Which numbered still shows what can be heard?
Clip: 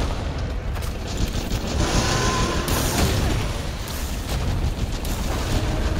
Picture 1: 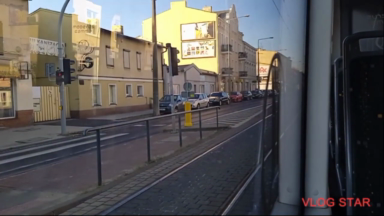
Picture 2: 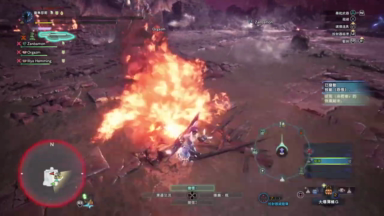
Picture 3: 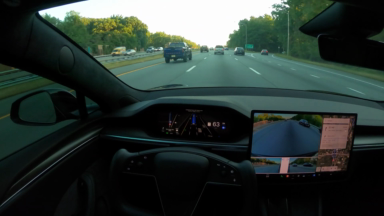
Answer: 2